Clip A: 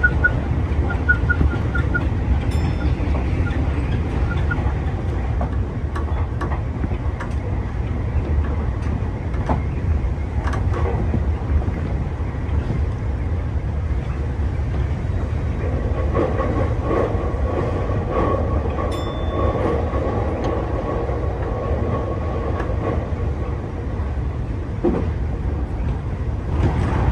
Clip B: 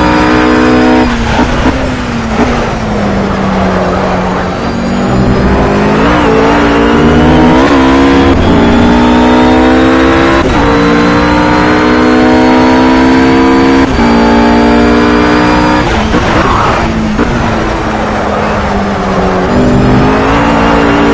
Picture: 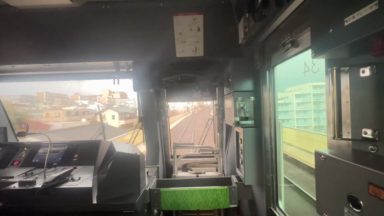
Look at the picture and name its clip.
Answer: A